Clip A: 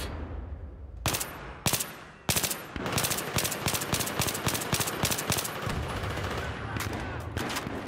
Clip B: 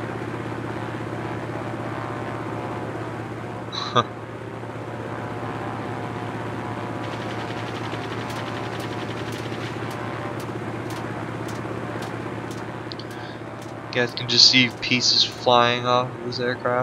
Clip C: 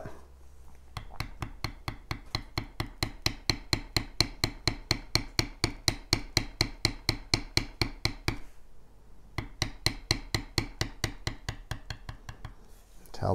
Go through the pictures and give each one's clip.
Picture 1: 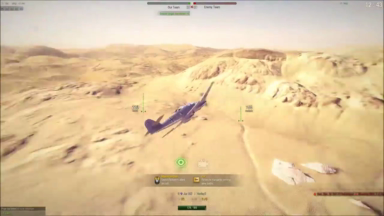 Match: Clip B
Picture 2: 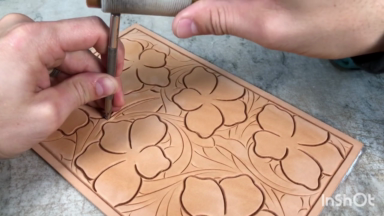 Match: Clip C